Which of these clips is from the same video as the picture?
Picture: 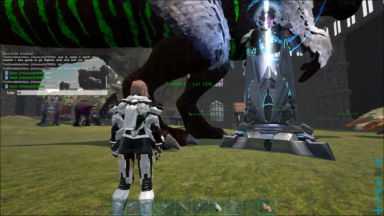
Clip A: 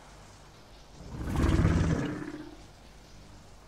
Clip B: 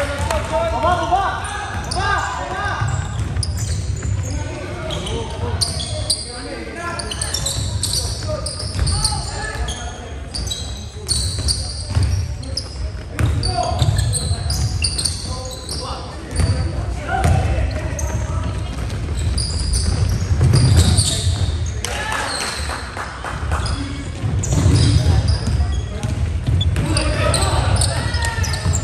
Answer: A